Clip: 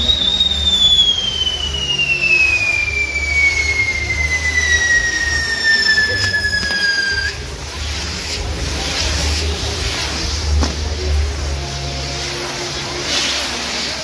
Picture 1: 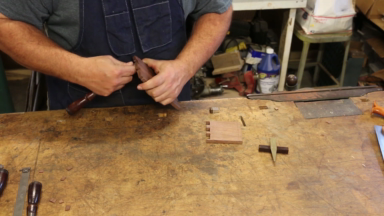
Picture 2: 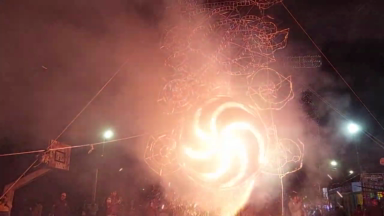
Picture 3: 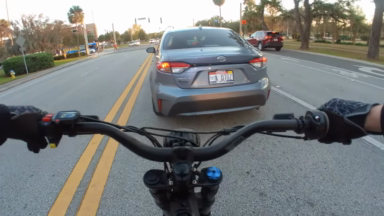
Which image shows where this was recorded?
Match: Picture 2